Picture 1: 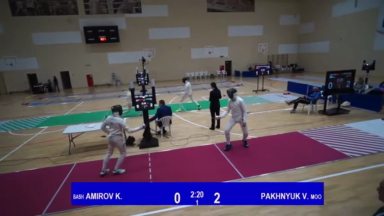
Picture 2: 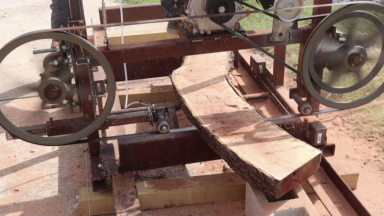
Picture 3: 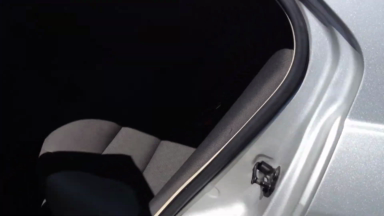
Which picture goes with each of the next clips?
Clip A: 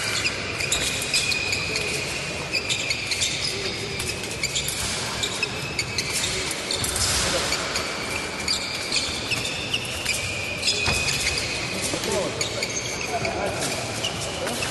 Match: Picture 1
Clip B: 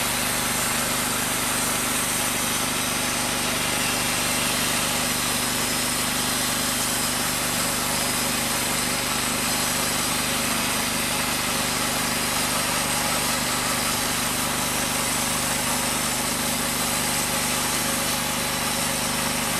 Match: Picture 2